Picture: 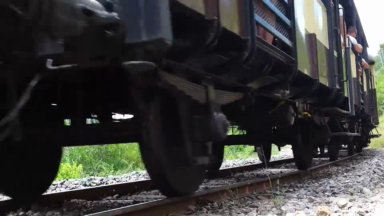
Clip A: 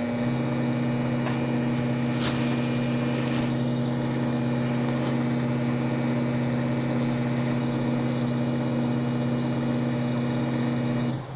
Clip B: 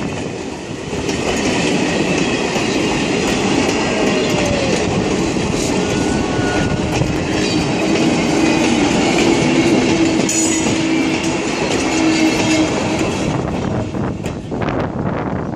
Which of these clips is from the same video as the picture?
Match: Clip B